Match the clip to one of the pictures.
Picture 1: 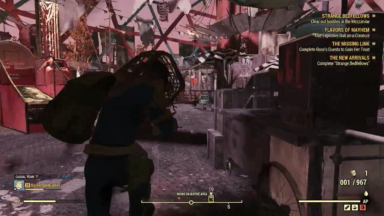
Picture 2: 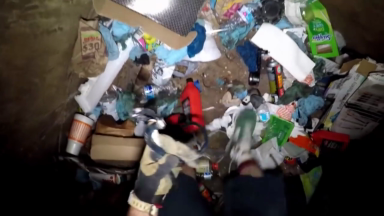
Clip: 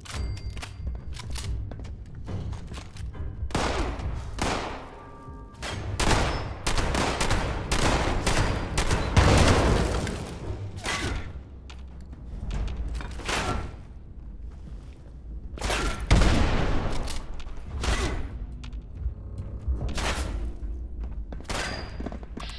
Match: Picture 1